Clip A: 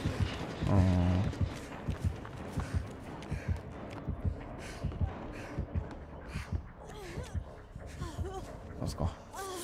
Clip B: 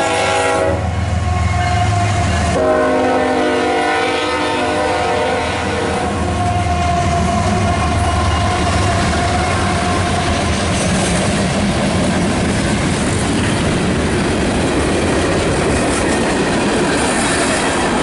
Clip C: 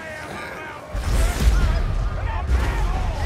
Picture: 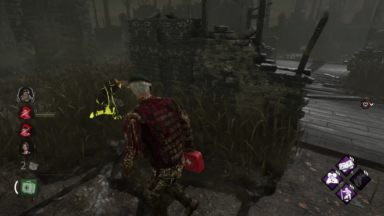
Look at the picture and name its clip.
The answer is A